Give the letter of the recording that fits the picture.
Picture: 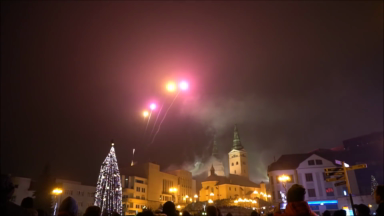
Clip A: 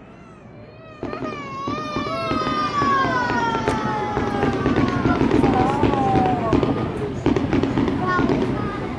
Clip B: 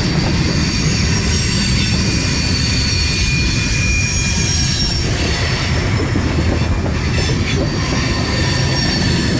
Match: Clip A